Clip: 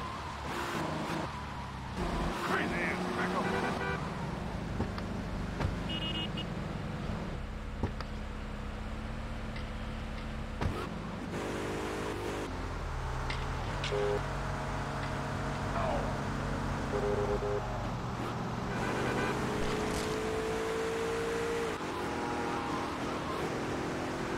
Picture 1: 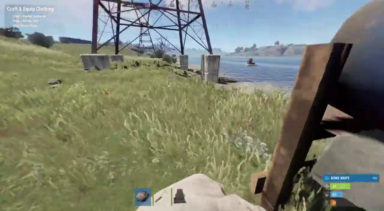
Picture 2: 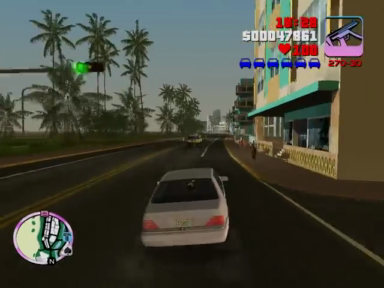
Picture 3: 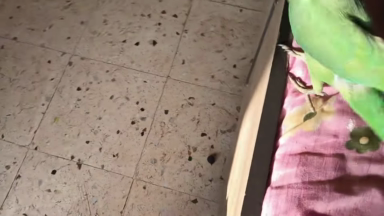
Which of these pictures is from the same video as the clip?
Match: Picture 2